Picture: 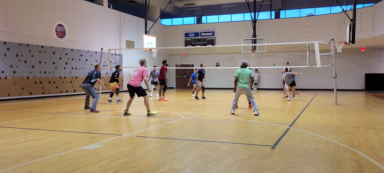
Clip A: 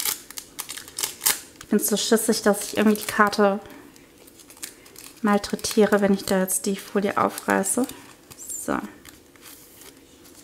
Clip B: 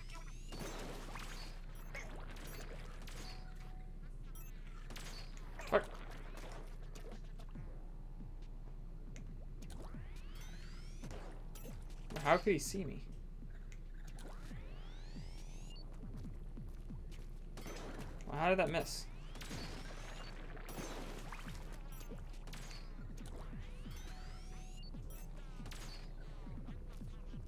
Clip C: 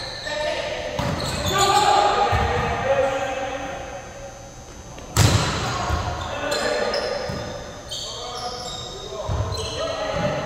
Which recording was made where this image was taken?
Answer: C